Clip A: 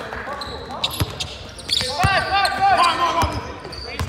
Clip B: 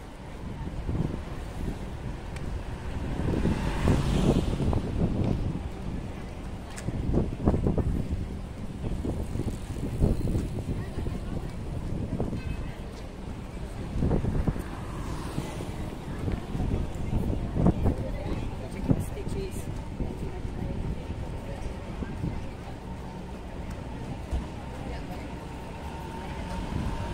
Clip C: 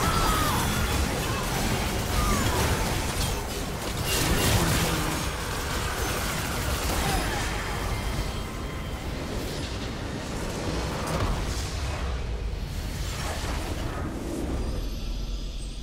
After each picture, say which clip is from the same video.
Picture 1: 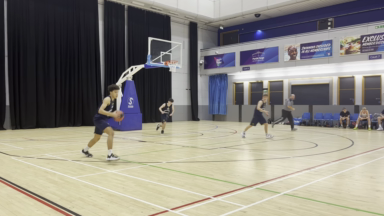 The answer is A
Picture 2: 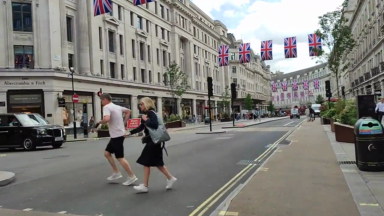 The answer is B